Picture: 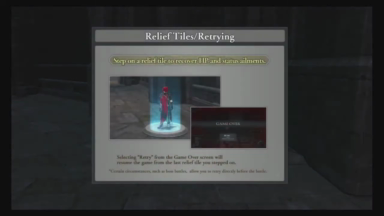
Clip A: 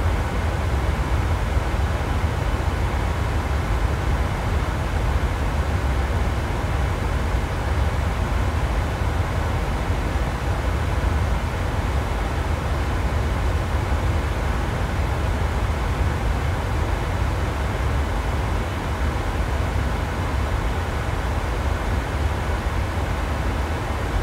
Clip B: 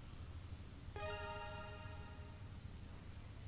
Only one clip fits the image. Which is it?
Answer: B